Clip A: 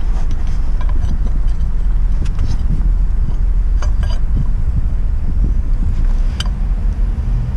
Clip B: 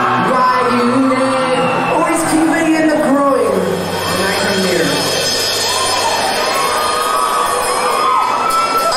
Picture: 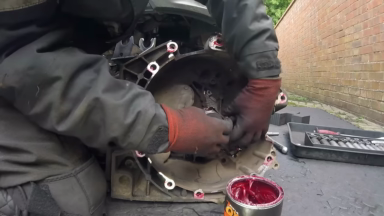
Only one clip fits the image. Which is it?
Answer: A